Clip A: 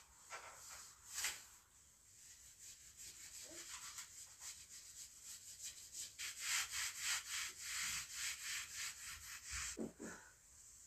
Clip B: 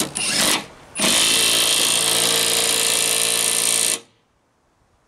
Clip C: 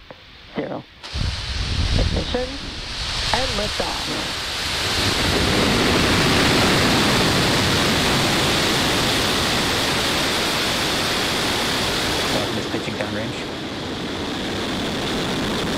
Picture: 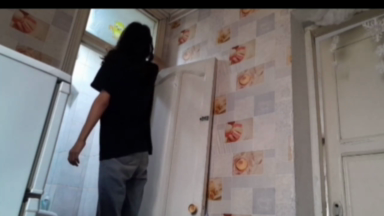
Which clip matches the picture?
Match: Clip A